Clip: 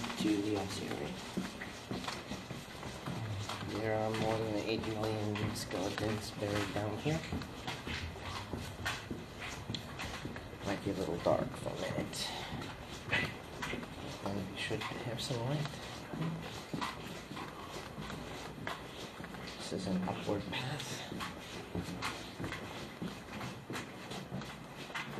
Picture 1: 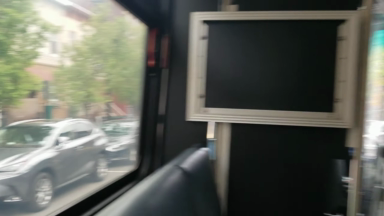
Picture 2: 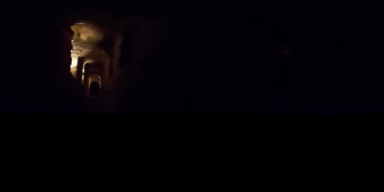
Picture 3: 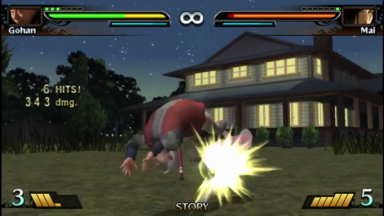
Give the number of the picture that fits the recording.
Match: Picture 2